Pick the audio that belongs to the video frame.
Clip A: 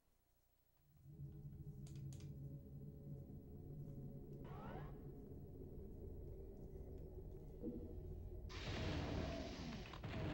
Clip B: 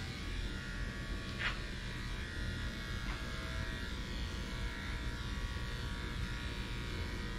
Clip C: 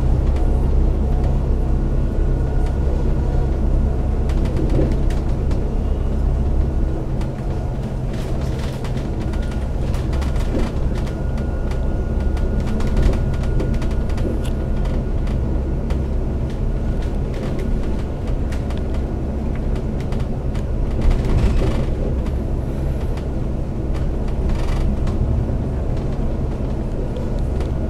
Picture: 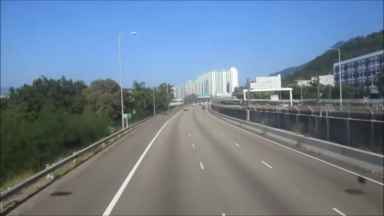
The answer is C